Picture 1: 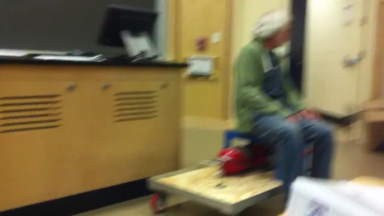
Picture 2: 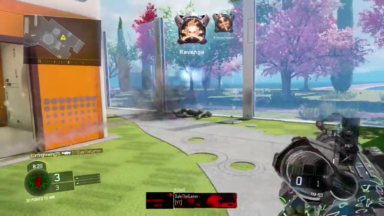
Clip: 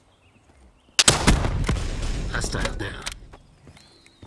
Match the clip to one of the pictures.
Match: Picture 2